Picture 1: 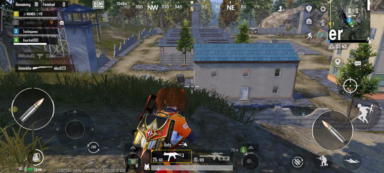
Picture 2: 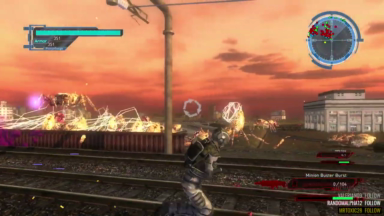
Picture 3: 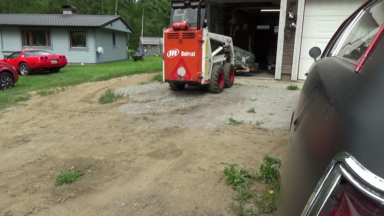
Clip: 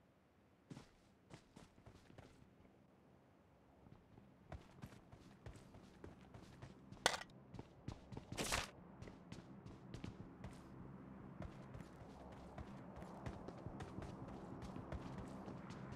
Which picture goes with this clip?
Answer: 1